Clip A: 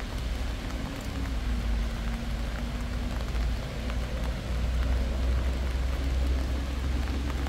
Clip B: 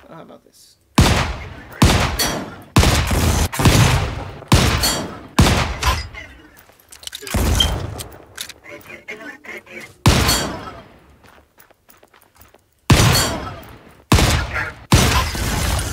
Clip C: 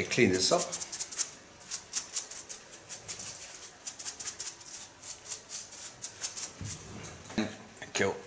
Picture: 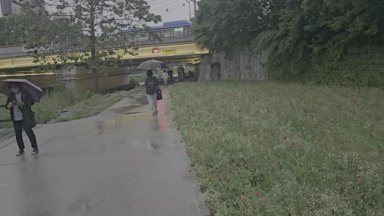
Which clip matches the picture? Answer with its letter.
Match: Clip A